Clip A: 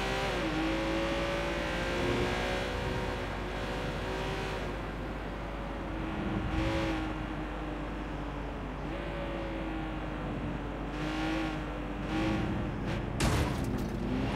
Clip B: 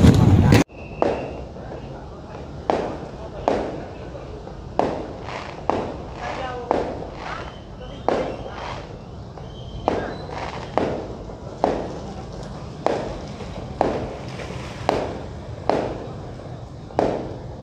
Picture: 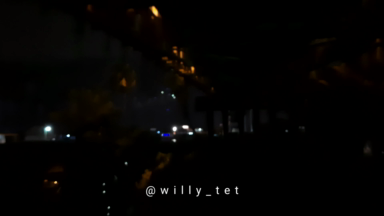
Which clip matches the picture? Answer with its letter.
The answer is B